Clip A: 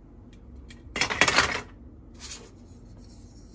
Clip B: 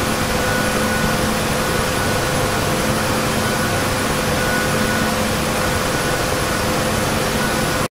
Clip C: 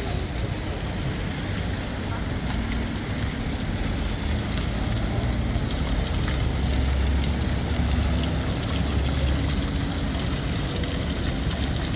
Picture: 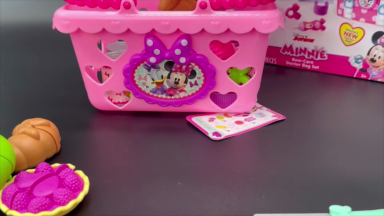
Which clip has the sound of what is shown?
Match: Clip A